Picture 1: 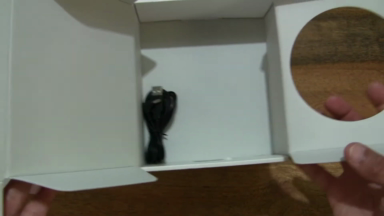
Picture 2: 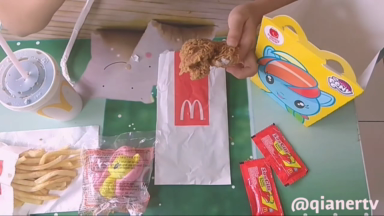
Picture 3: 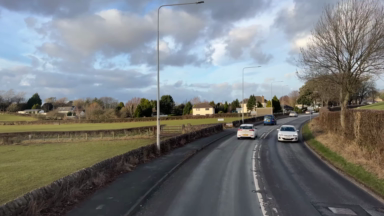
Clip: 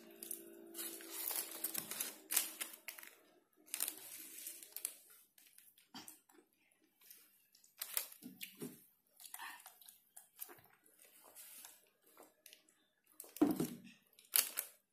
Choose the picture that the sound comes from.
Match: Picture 2